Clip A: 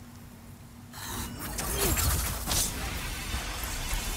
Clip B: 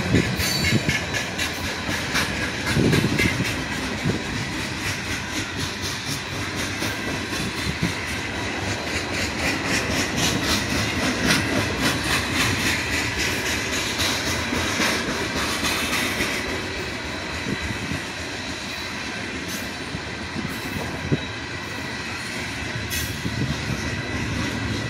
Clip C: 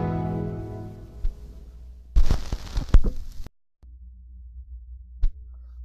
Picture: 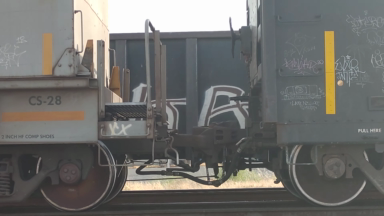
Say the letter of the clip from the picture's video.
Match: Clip B